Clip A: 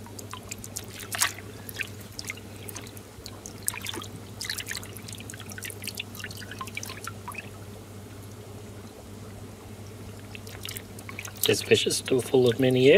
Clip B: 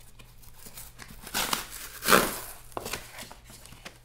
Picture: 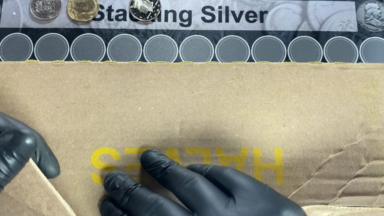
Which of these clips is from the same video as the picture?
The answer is B